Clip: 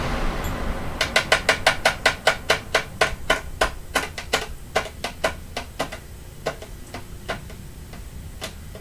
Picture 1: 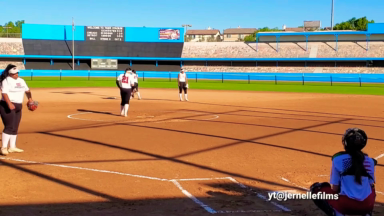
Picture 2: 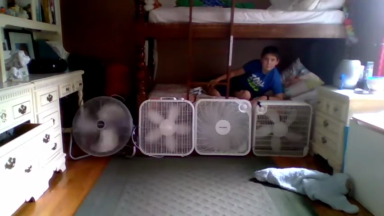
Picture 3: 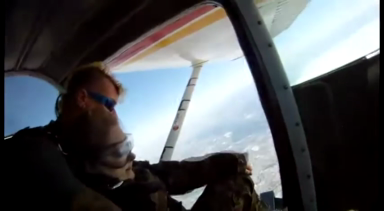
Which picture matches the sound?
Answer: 2